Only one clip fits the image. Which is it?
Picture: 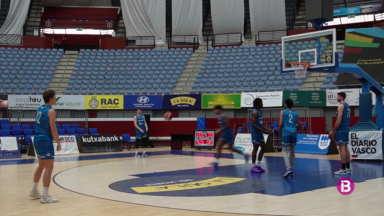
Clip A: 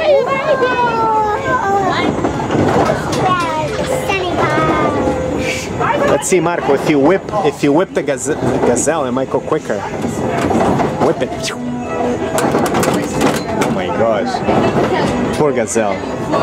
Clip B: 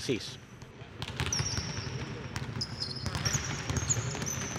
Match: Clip B